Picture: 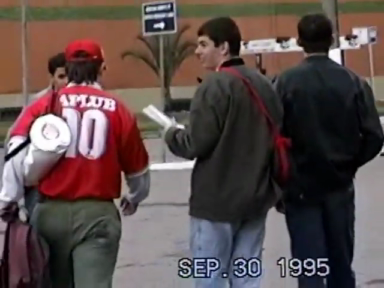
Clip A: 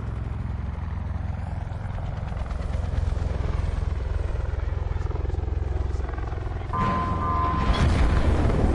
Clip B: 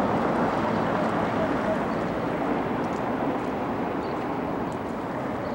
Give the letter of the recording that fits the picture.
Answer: B